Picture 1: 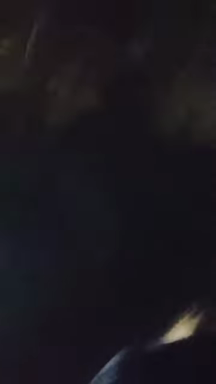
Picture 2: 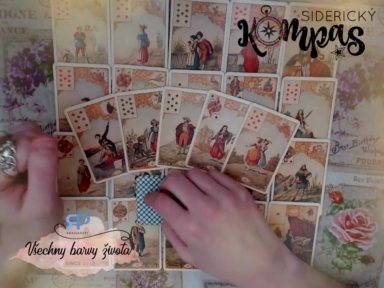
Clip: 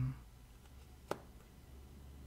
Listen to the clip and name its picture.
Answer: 2